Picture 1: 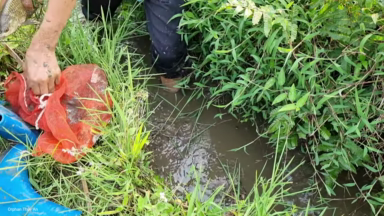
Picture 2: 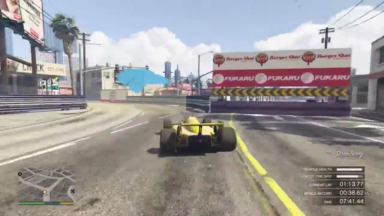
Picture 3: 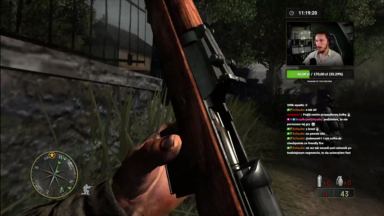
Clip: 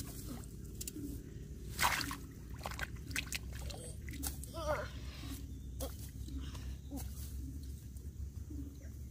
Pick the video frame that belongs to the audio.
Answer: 1